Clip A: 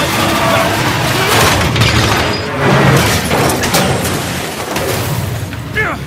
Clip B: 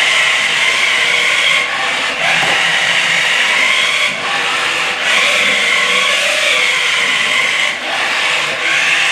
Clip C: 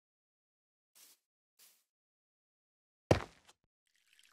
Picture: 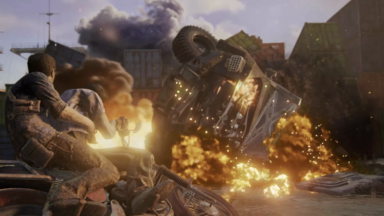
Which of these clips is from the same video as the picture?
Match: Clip A